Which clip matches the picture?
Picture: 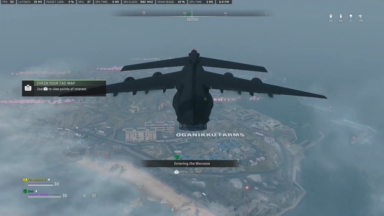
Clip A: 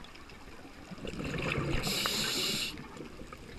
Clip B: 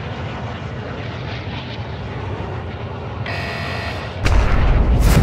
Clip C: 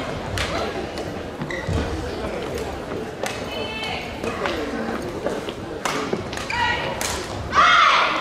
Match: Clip B